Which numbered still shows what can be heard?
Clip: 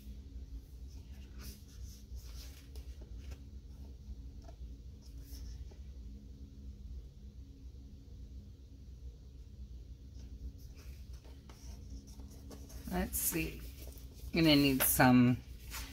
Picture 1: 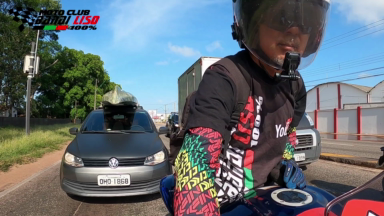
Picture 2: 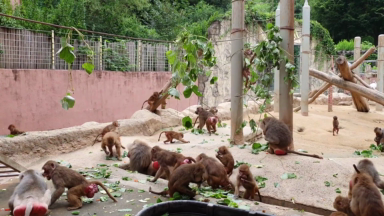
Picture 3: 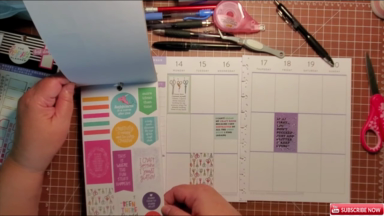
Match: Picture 3